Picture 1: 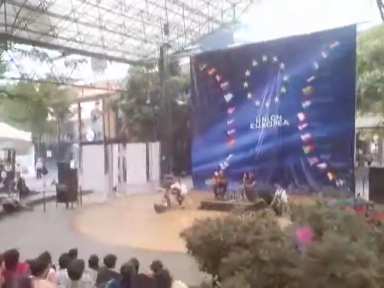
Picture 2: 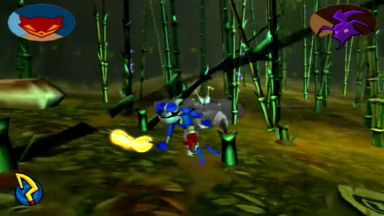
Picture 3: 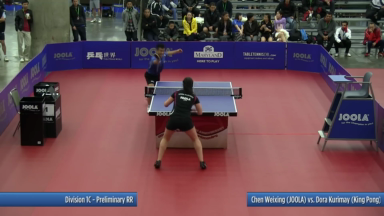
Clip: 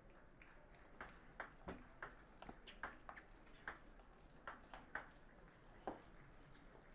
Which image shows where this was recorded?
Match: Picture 3